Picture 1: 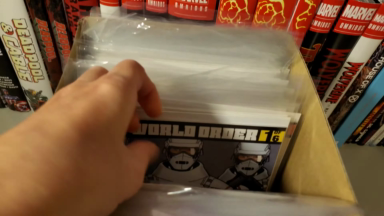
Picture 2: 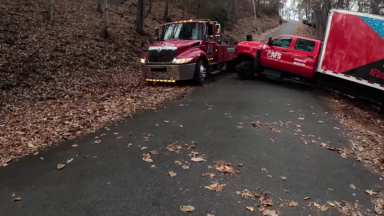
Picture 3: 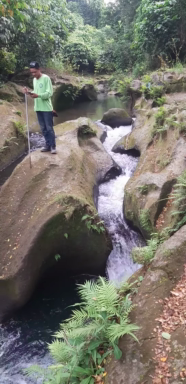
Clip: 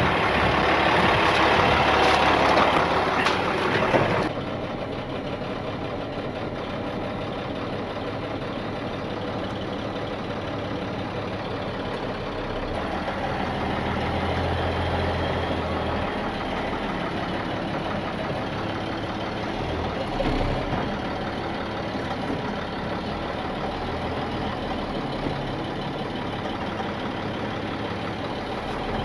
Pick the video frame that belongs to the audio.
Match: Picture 2